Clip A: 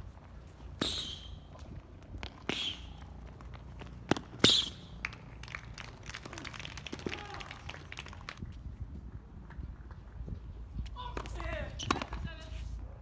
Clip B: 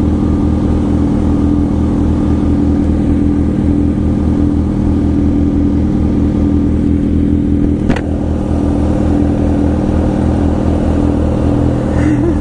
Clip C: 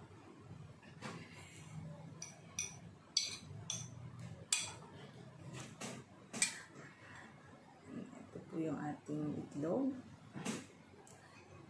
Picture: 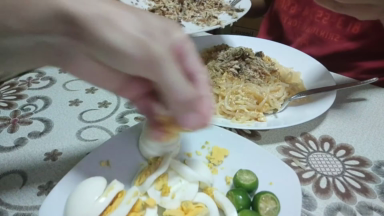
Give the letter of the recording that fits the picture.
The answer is C